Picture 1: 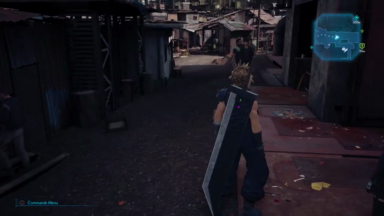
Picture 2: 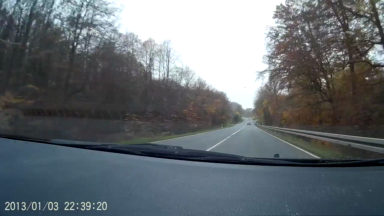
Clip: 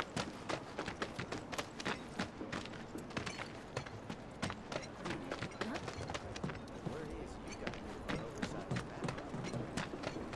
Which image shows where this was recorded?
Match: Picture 1